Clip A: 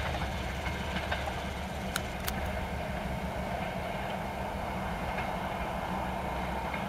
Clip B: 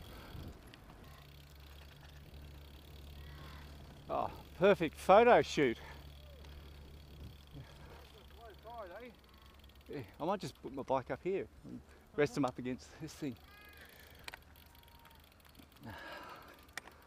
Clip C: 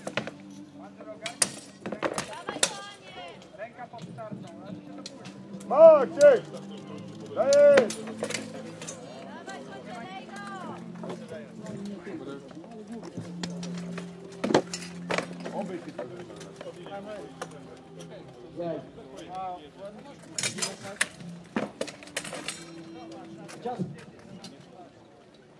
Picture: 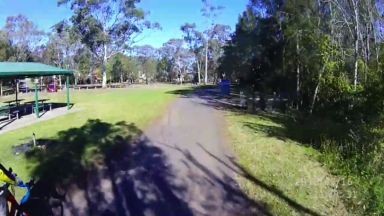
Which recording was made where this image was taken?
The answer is B